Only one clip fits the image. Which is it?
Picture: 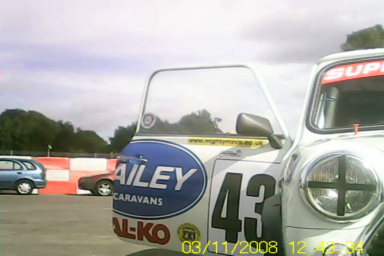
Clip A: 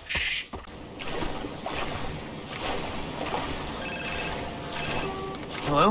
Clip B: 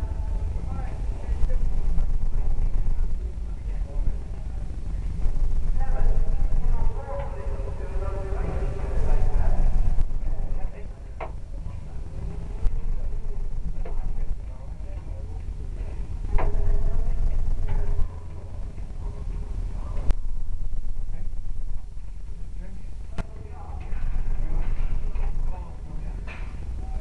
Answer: B